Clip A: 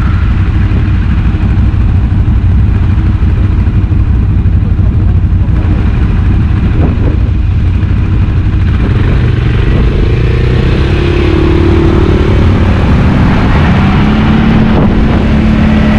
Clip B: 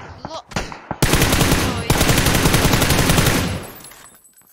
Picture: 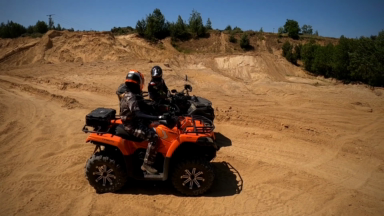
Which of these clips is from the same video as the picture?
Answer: A